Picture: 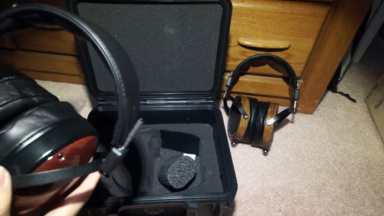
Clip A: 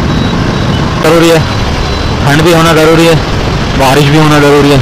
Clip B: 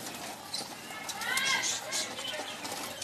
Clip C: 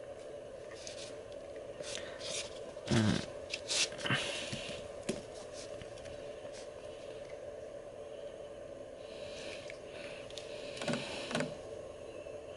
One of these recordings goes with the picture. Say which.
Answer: C